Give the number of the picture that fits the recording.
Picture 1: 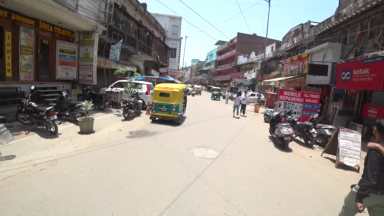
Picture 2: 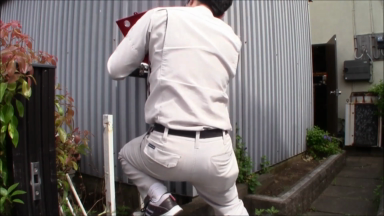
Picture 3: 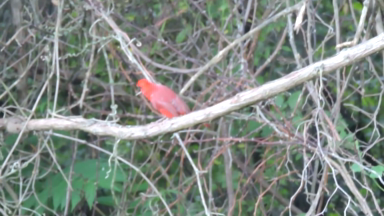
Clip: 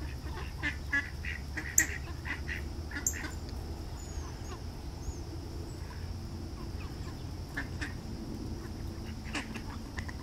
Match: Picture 3